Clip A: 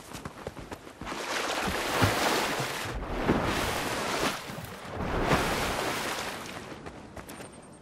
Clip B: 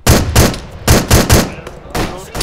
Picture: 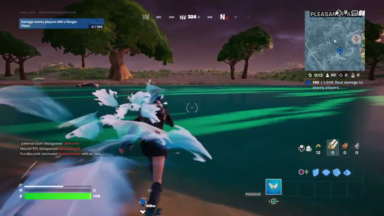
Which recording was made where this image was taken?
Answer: A